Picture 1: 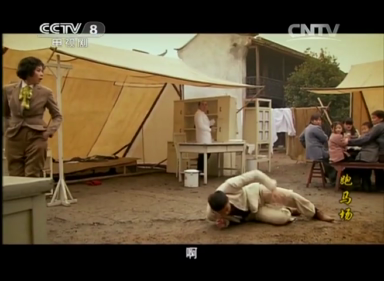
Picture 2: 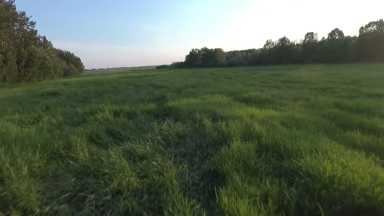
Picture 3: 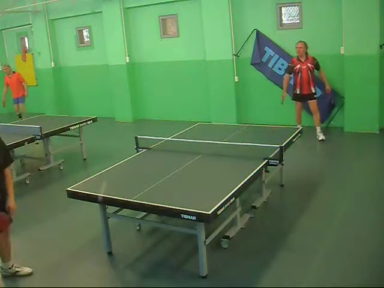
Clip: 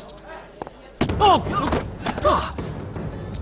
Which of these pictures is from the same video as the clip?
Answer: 1